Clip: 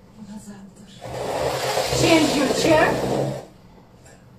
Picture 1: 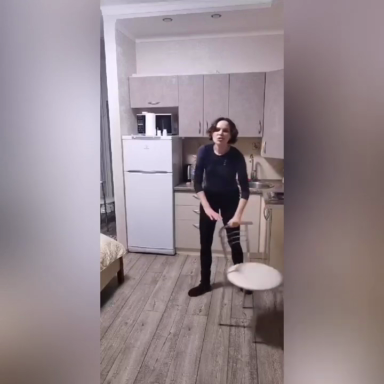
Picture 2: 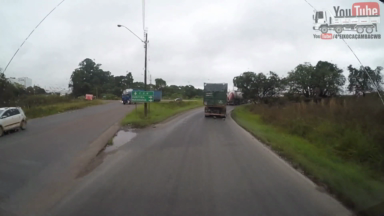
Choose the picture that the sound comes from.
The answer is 1